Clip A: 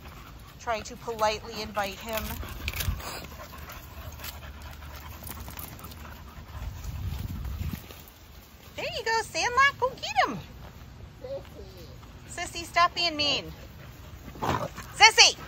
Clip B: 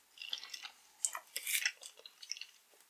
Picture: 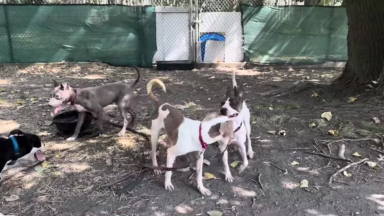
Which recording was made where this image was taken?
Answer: A